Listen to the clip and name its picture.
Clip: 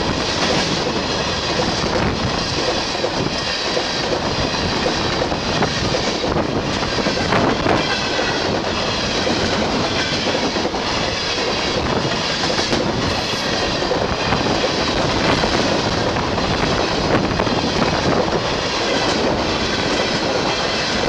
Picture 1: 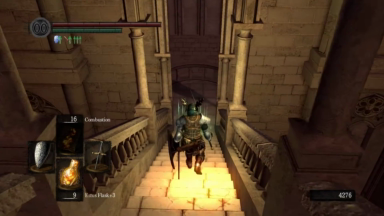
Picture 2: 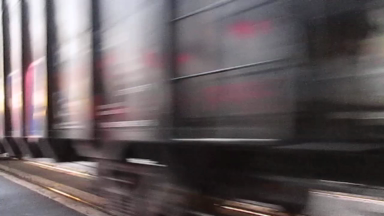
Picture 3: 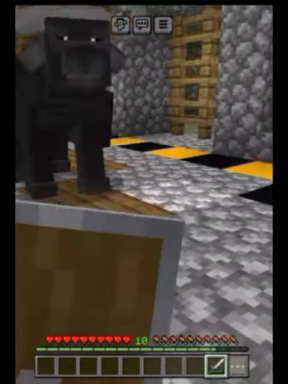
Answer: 2